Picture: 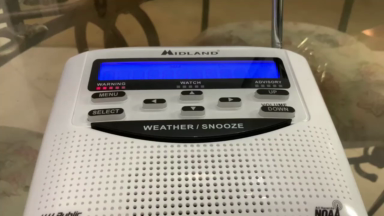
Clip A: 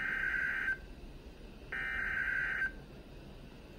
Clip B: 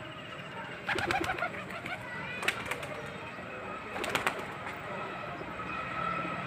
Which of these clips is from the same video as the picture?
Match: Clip A